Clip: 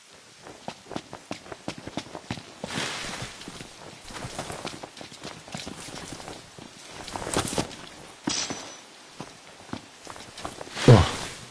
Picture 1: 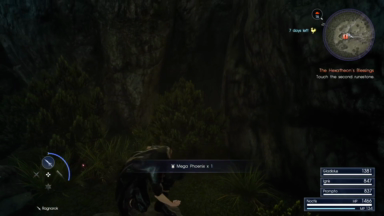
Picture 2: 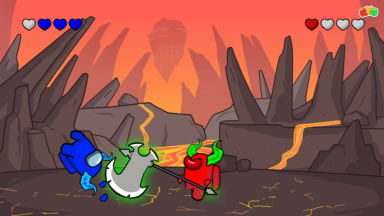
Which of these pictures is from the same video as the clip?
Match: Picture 1